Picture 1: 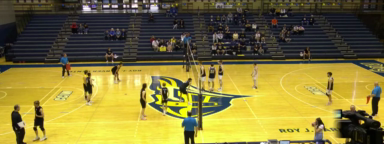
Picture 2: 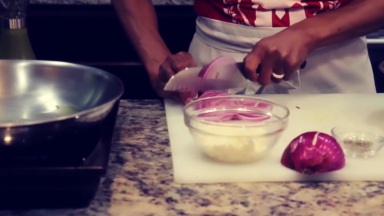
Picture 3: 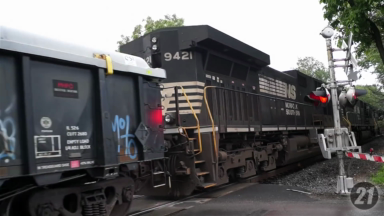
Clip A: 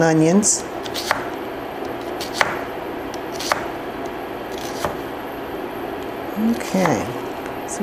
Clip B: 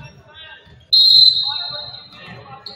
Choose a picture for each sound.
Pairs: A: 2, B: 1